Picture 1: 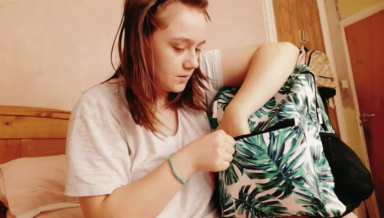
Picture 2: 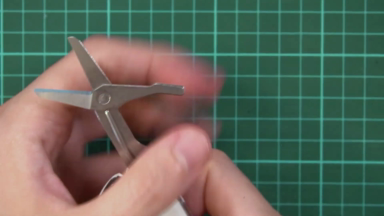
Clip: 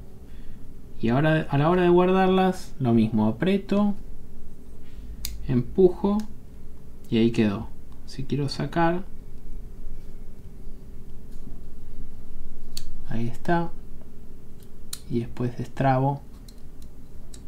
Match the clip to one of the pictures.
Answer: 2